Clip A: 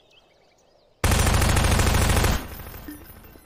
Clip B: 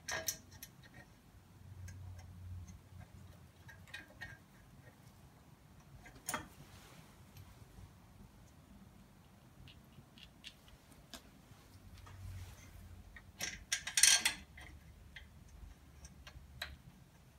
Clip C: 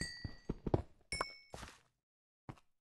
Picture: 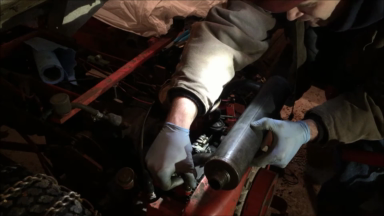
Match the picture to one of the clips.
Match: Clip B